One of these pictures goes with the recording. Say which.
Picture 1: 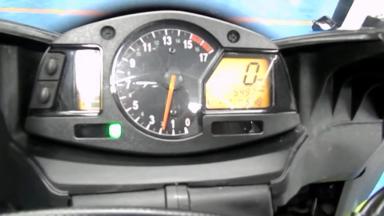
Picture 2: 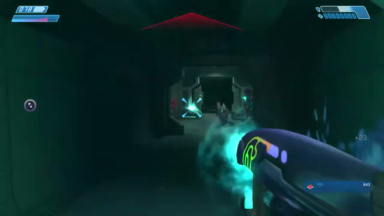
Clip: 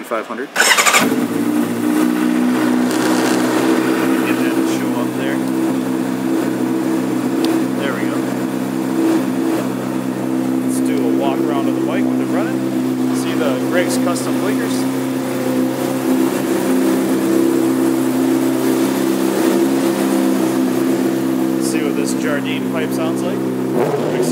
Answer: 1